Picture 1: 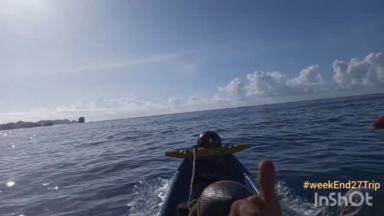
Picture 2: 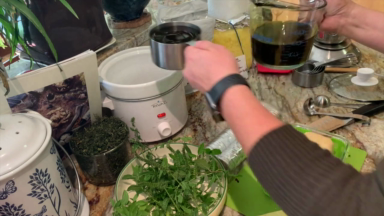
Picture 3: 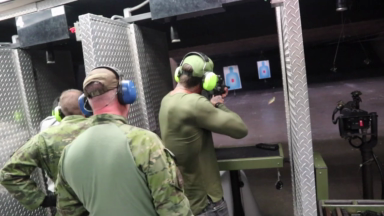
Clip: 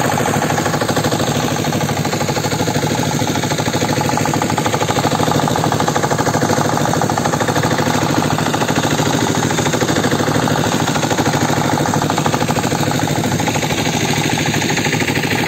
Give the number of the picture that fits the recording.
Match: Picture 1